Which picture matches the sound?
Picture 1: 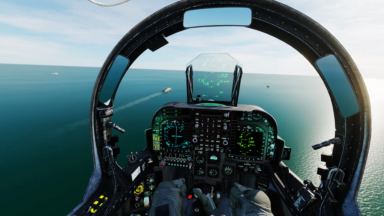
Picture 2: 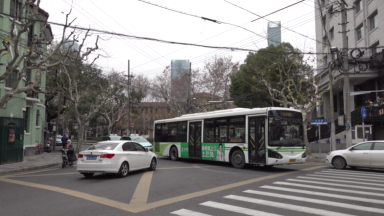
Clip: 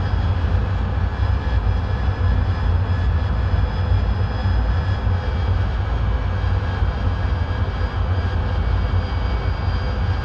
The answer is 1